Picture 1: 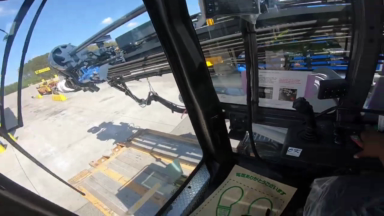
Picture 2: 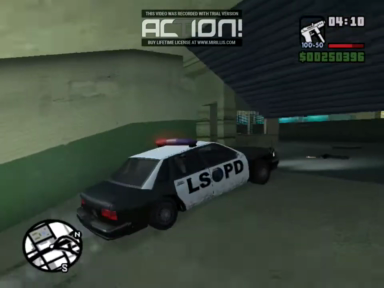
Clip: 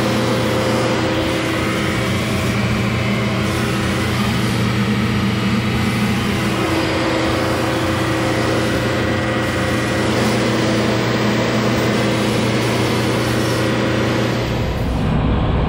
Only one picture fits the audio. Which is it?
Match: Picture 1